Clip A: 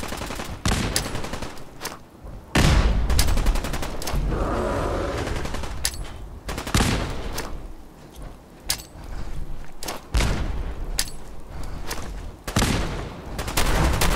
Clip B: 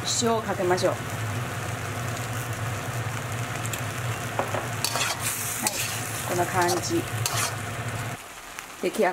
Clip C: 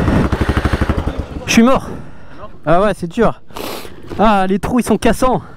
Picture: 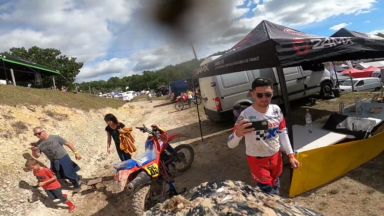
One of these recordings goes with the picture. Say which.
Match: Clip C